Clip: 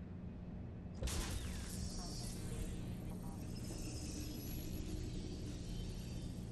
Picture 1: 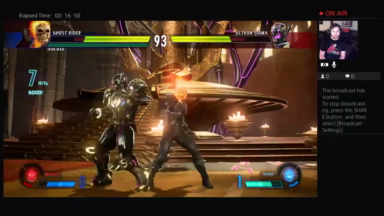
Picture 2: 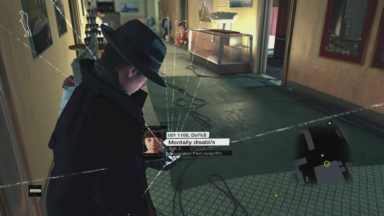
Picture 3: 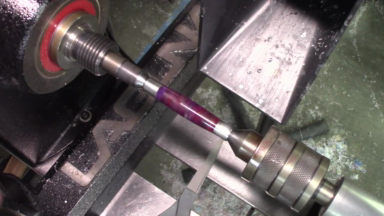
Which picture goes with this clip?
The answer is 2